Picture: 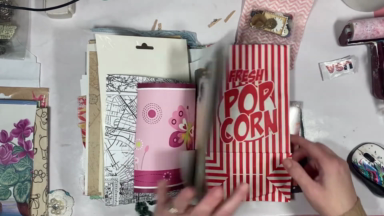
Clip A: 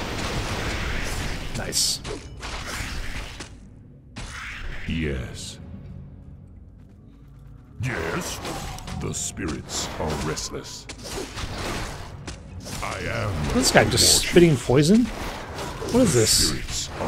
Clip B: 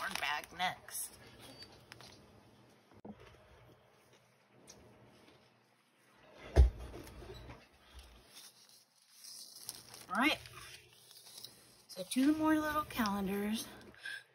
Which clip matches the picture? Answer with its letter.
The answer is B